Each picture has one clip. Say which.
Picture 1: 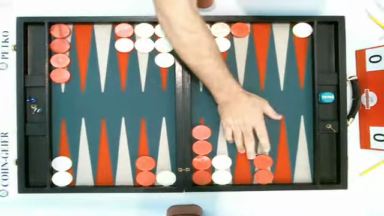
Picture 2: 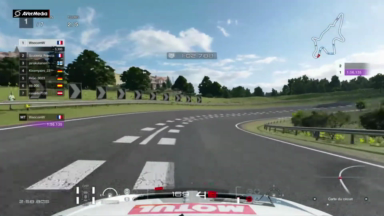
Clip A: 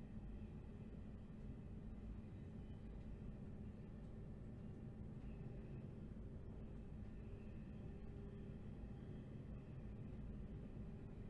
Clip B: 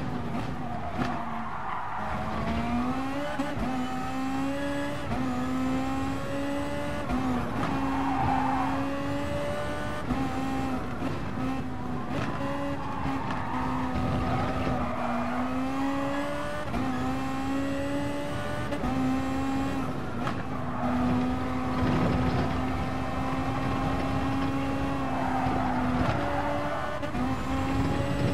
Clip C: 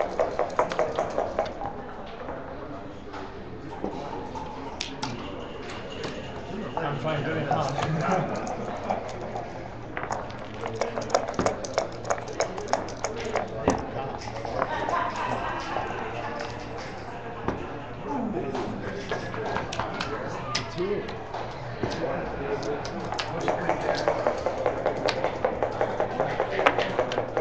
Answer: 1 C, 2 B